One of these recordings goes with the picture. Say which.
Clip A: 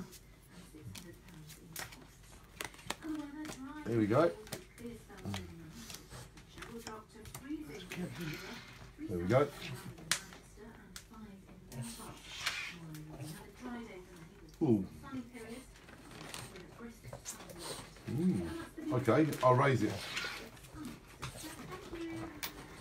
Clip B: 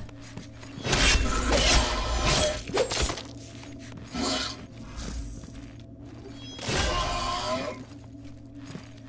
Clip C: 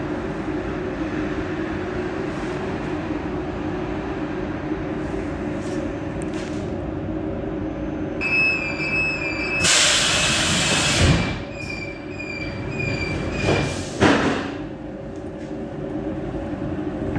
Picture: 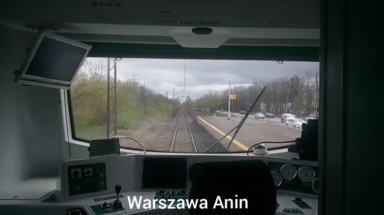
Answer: C